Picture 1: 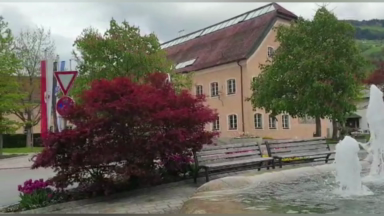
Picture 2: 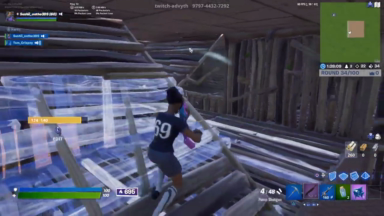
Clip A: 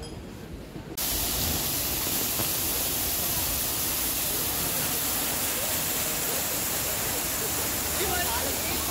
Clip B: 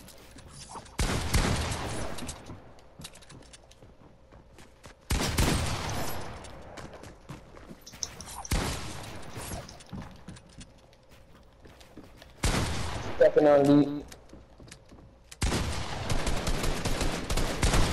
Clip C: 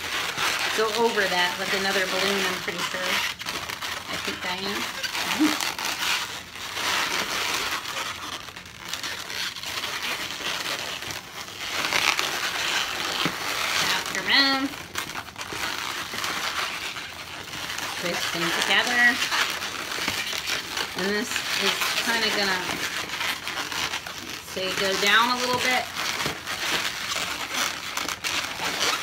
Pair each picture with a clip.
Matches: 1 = A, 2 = B